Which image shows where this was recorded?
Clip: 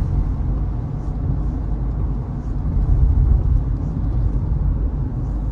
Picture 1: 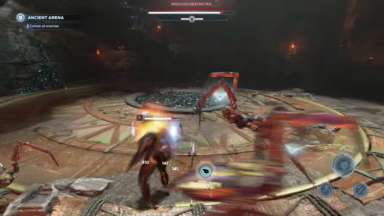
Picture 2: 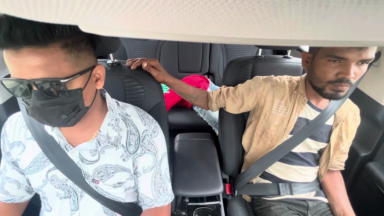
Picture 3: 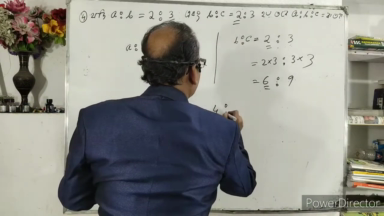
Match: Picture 2